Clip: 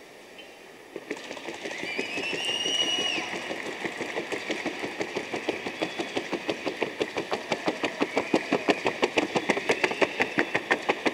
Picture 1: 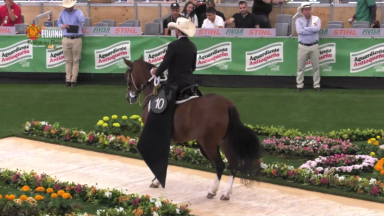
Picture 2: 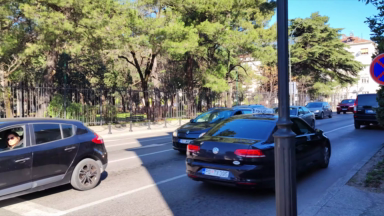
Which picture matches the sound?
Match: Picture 1